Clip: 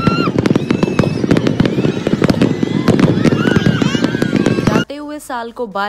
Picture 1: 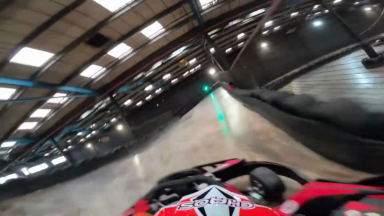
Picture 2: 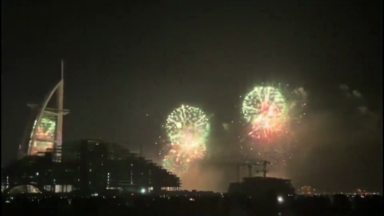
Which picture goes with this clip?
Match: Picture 2